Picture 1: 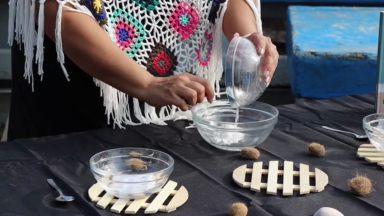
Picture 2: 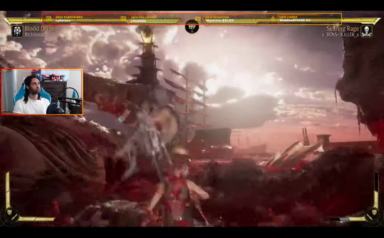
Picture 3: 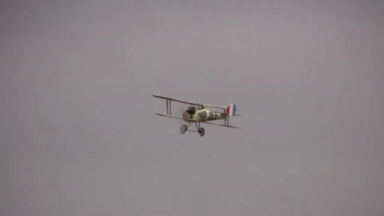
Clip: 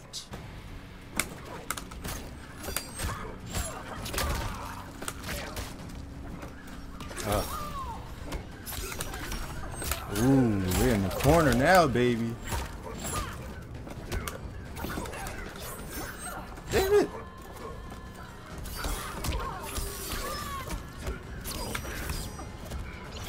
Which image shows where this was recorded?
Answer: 2